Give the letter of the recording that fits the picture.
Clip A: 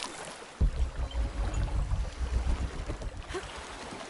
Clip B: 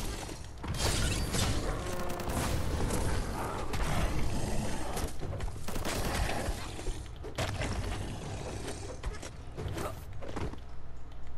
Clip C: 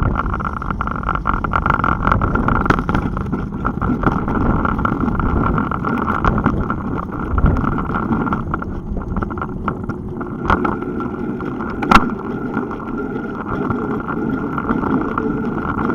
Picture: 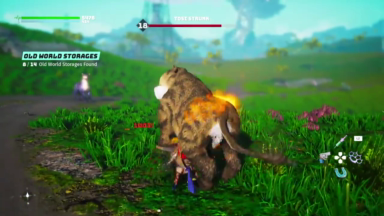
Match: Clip B